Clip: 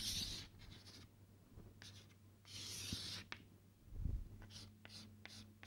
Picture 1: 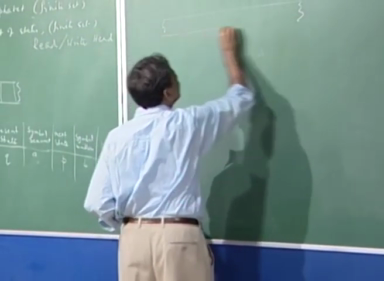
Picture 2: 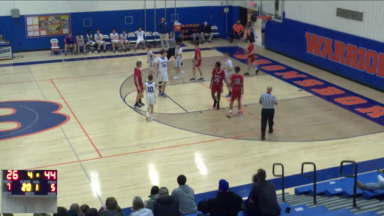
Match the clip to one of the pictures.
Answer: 1